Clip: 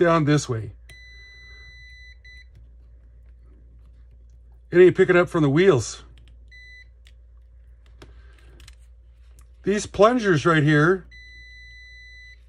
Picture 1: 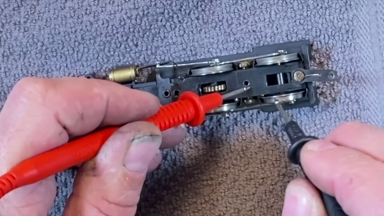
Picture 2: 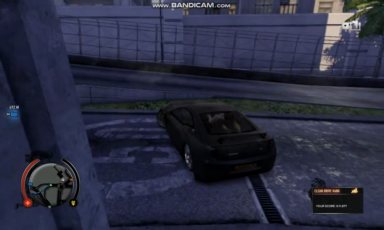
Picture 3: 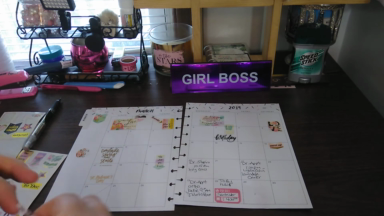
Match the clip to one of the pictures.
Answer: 1